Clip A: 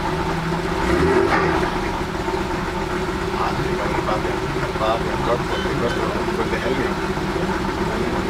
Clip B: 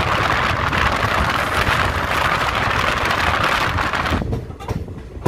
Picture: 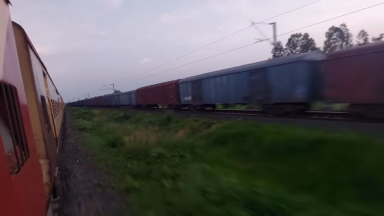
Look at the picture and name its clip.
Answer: B